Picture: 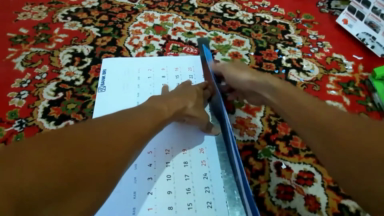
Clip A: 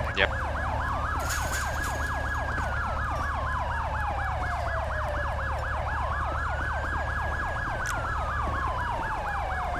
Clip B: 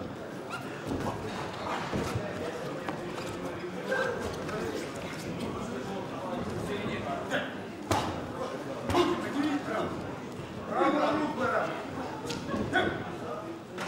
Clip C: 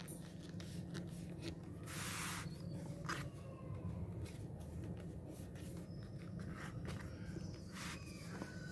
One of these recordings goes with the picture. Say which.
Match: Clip C